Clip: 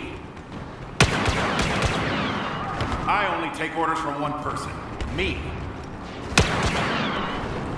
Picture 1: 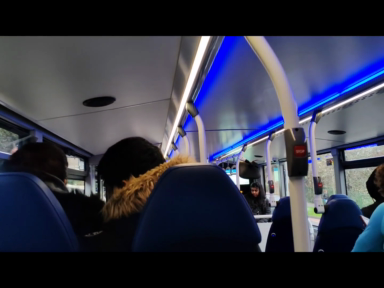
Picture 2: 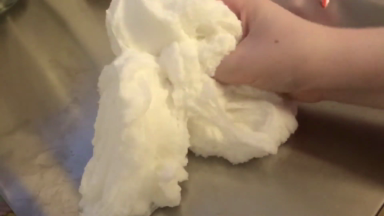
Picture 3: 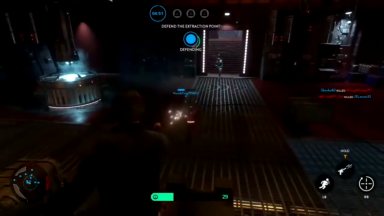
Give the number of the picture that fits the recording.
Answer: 3